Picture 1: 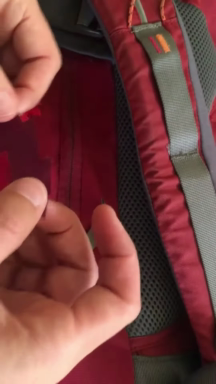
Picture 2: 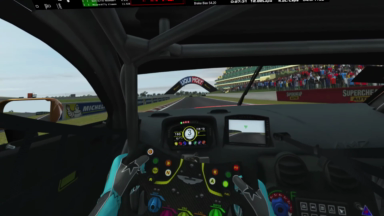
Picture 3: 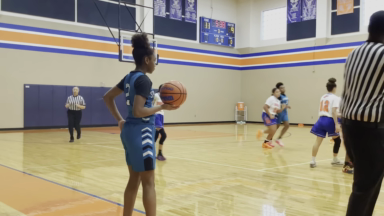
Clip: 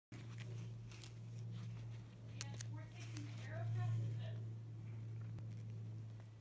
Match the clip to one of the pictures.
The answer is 1